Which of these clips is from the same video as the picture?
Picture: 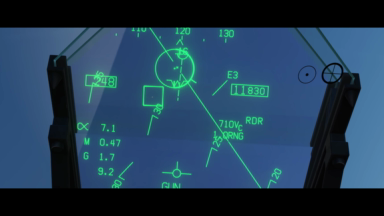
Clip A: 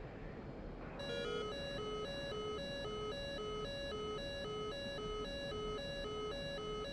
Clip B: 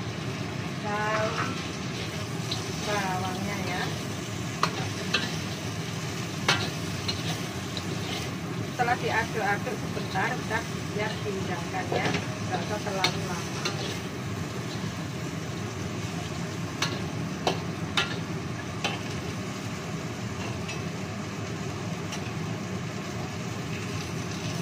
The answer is A